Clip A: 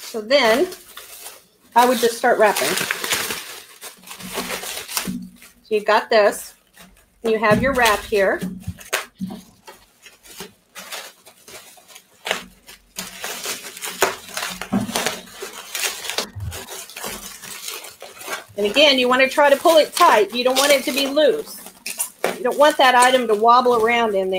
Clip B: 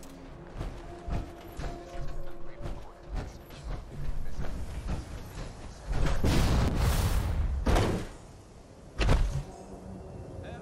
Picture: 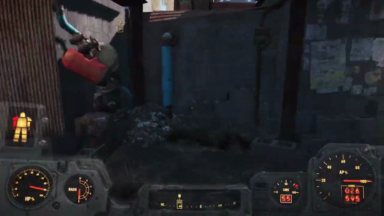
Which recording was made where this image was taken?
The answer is B